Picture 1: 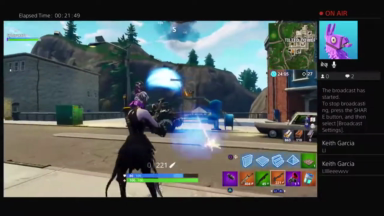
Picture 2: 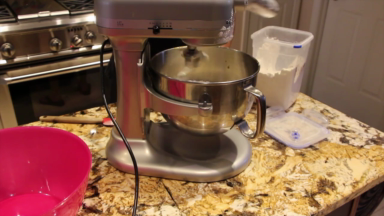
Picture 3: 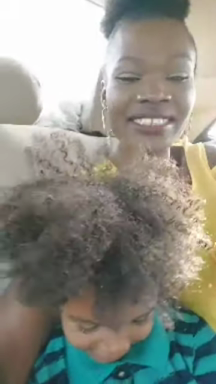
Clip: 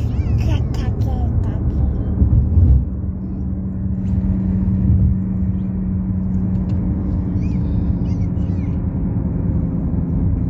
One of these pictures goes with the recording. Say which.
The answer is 3